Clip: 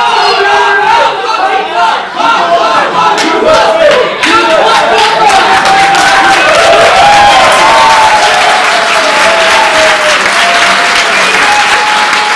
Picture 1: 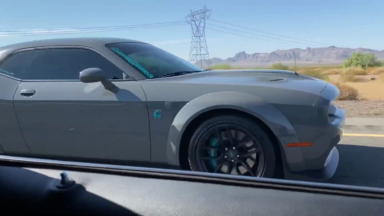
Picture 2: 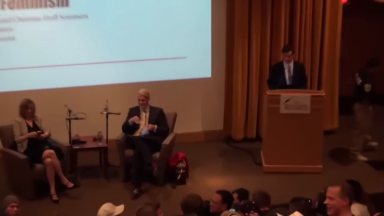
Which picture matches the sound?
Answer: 2